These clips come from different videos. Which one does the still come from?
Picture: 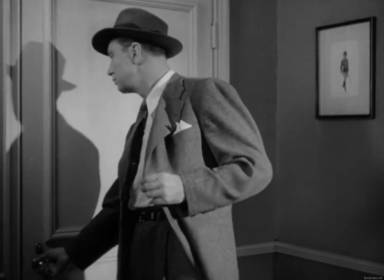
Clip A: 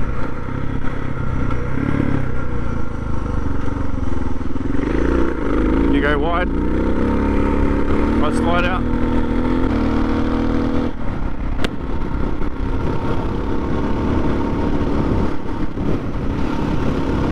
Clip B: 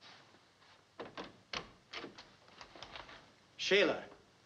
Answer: B